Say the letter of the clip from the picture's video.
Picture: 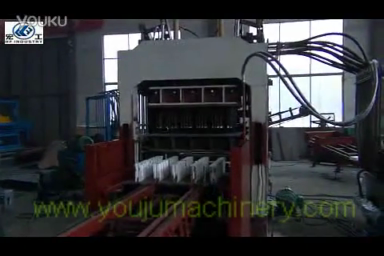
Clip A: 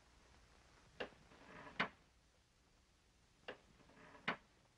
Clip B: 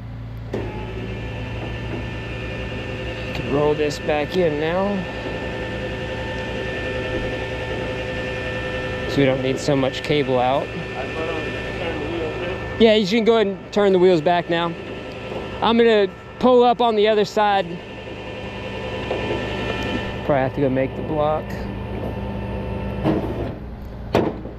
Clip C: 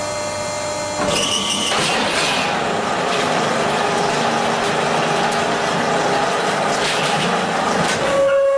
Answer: C